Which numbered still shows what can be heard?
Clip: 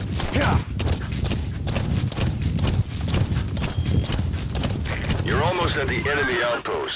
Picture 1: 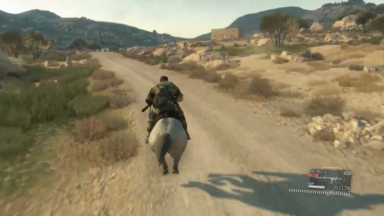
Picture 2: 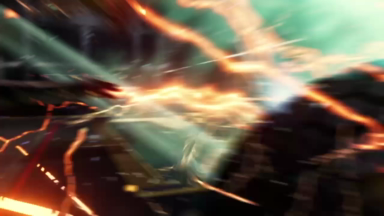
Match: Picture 1